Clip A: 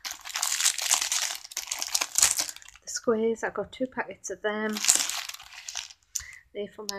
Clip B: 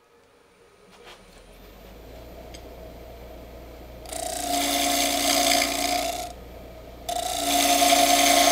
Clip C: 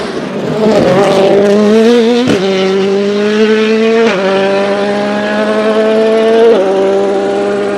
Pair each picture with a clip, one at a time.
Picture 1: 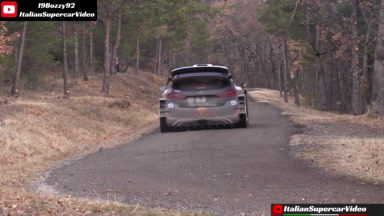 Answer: C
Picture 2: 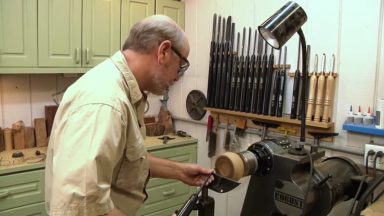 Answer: B